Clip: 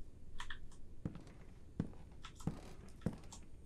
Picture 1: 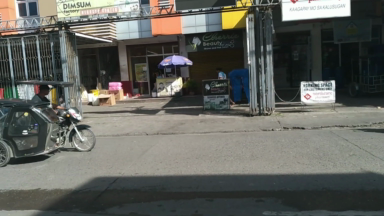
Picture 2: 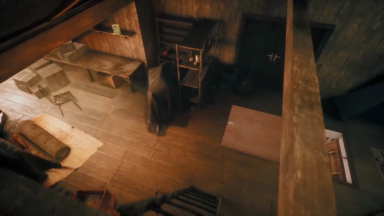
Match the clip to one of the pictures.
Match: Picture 2